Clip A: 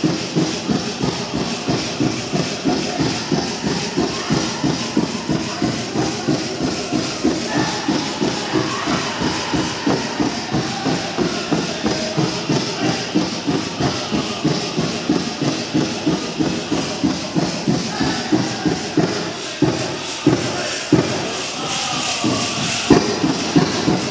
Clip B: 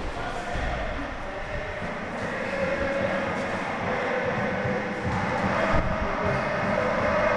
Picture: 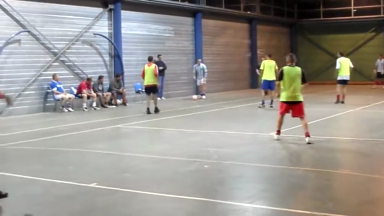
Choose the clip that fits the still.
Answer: B